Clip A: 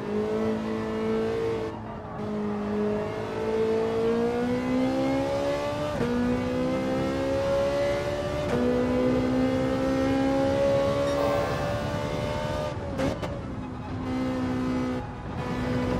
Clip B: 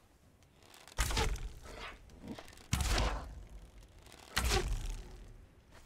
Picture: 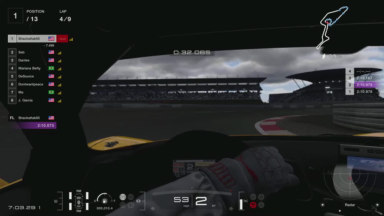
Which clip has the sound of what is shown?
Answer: A